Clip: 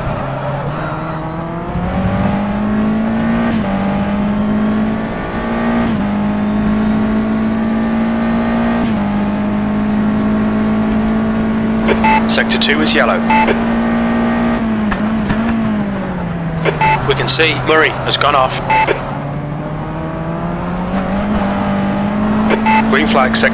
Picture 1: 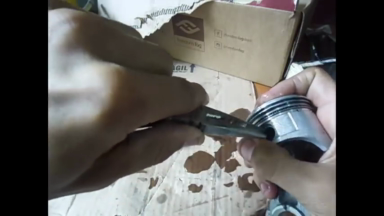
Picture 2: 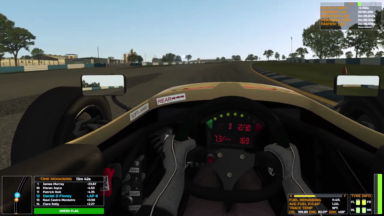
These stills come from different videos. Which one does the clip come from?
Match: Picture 2